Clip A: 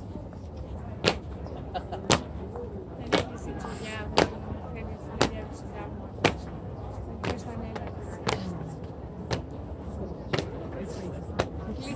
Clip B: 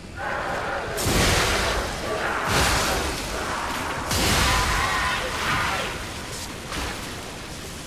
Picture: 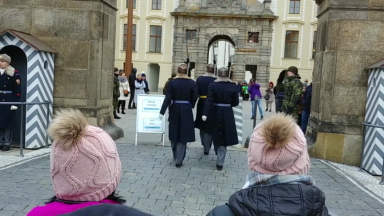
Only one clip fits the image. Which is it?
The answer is A